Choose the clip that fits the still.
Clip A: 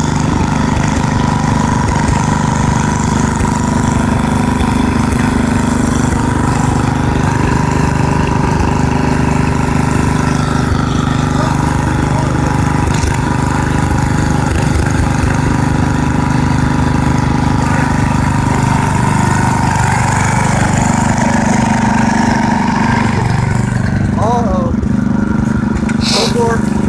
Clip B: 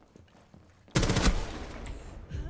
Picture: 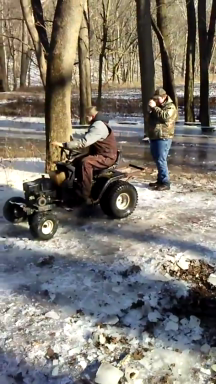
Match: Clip A